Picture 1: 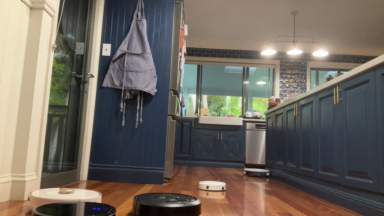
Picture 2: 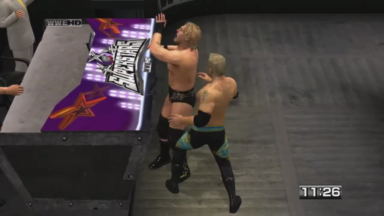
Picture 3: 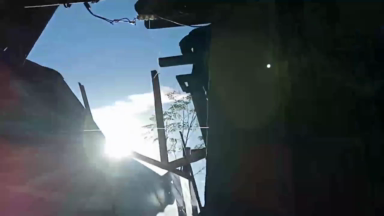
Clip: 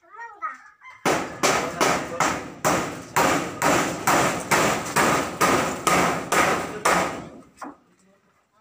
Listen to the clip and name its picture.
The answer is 3